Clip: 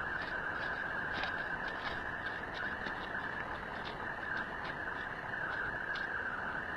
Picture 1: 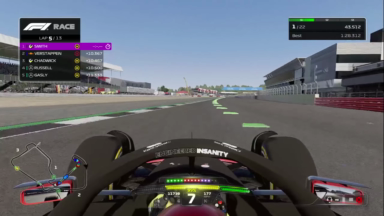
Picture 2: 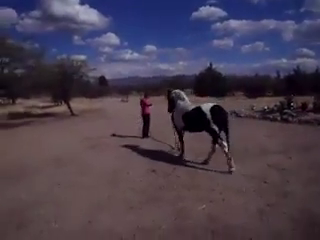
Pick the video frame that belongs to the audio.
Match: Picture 2